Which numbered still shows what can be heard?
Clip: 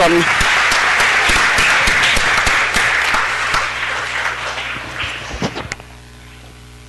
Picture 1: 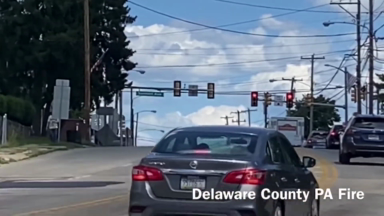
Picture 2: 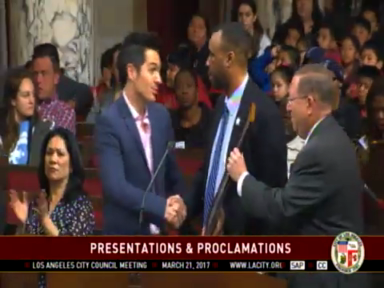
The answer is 2